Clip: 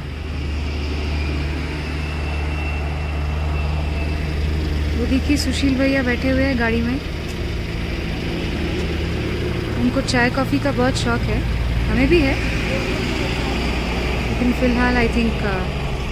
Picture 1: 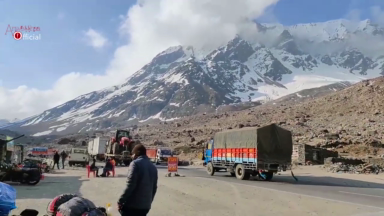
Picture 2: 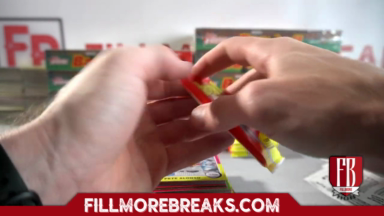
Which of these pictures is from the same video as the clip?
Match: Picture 1